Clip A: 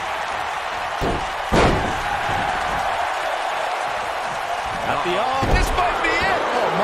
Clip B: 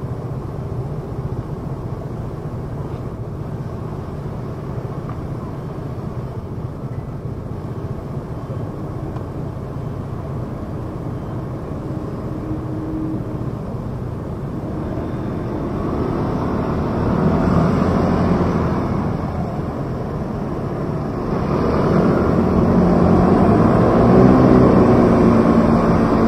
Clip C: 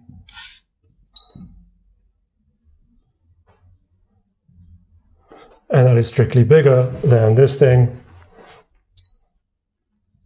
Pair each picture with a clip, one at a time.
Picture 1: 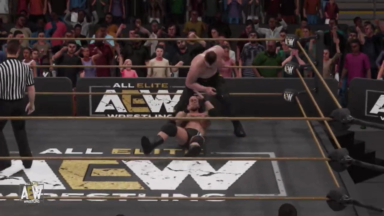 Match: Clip A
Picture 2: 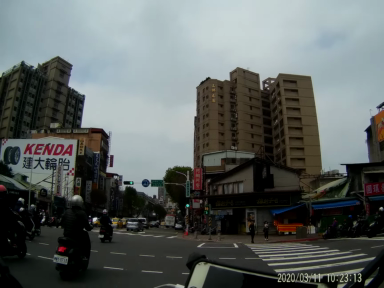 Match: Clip B